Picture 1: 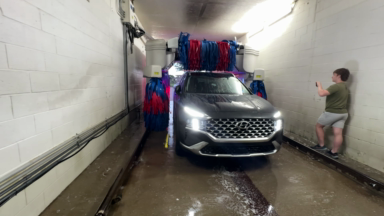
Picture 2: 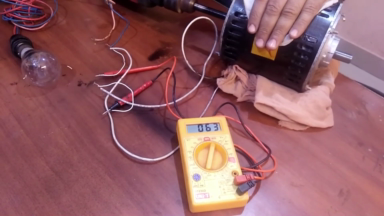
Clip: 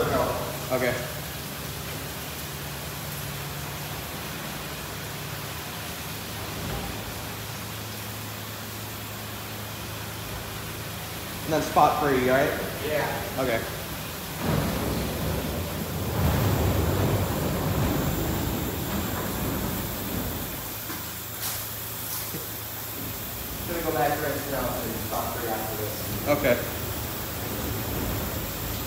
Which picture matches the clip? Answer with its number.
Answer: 1